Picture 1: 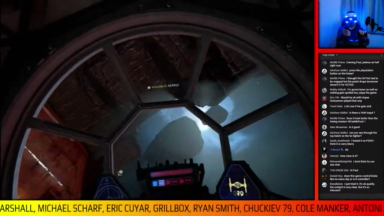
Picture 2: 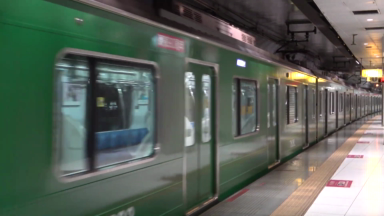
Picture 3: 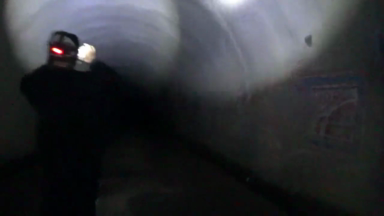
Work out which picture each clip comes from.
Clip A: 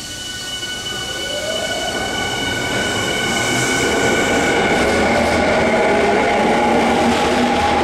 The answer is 2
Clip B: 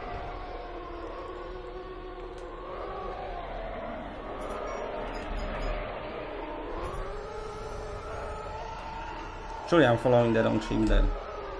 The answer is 1